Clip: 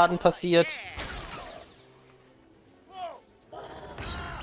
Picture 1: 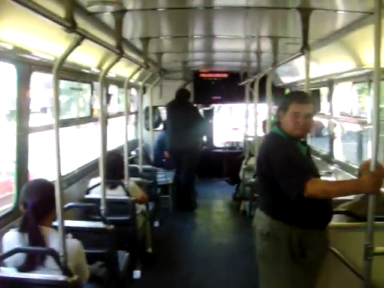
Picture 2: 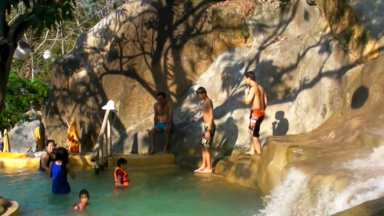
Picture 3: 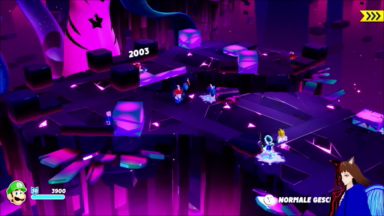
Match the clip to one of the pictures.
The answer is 3